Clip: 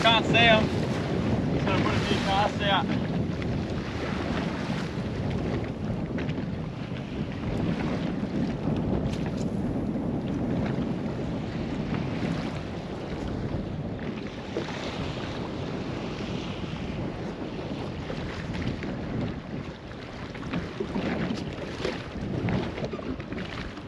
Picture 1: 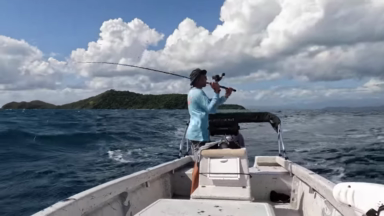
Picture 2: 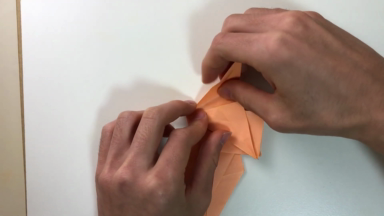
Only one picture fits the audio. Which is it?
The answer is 1